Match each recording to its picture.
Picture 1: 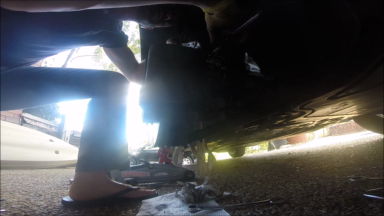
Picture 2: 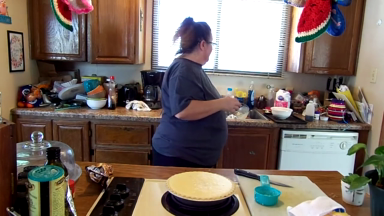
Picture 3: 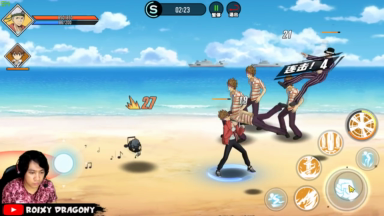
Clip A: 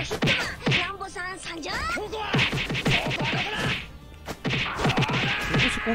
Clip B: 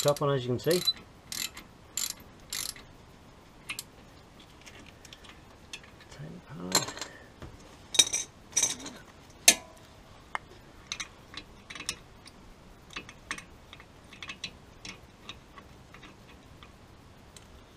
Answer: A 3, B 1